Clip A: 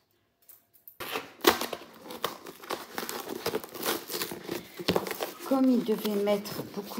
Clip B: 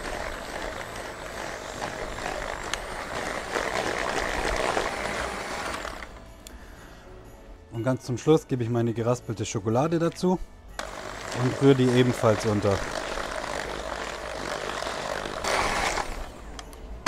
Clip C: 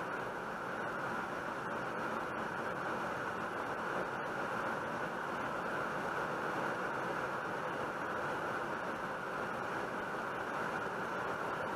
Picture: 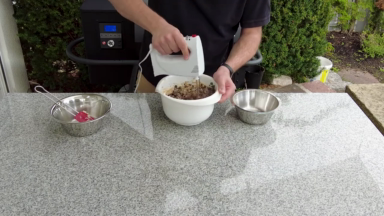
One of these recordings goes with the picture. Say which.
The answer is B